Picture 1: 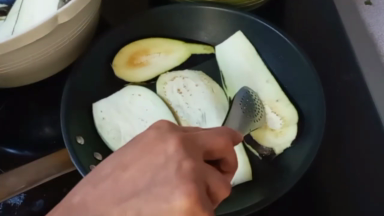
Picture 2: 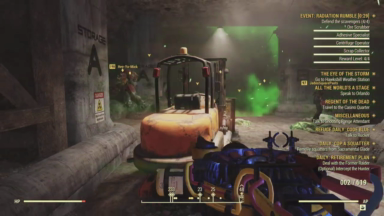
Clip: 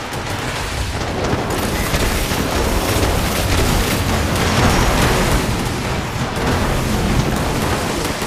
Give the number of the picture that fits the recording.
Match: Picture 2